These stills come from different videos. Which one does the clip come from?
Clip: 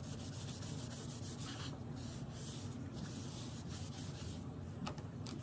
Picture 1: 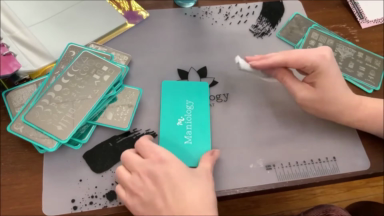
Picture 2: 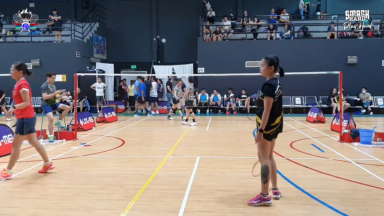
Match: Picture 1